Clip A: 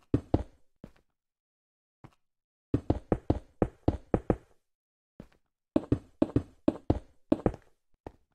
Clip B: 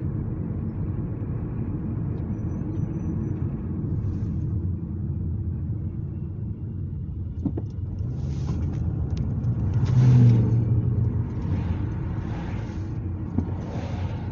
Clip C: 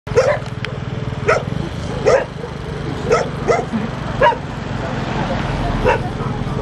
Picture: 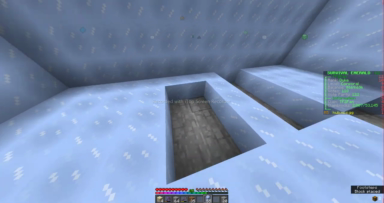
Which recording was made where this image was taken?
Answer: A